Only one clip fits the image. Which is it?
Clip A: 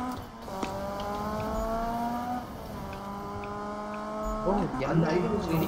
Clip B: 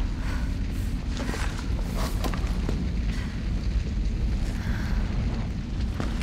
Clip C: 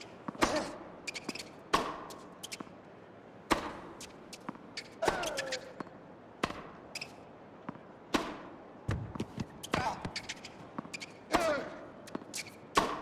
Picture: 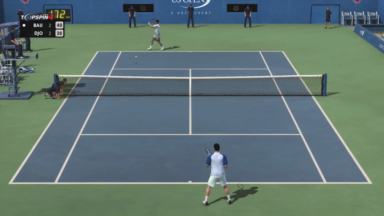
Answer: C